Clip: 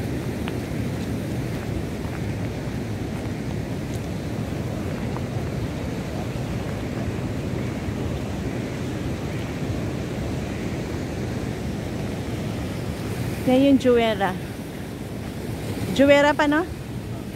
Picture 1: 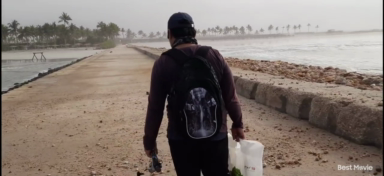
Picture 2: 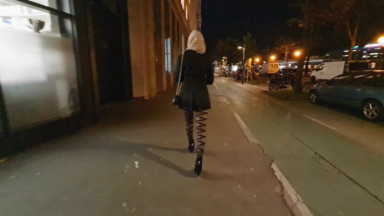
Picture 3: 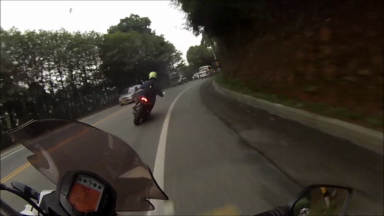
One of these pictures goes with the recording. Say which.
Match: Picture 1